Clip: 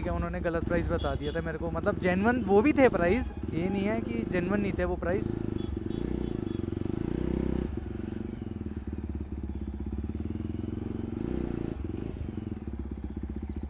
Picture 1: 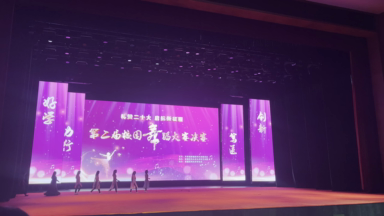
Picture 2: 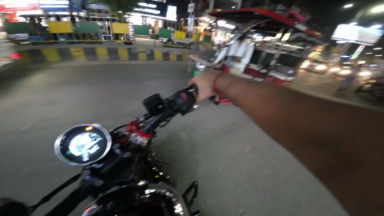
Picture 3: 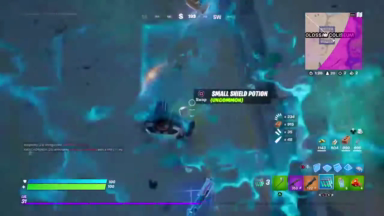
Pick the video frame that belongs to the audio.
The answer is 2